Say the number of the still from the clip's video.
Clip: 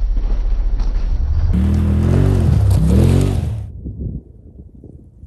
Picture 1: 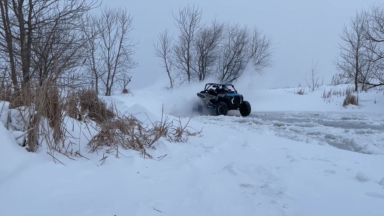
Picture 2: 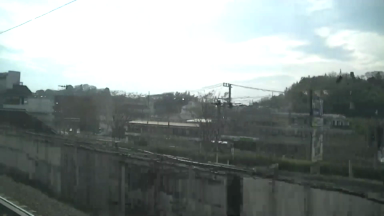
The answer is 1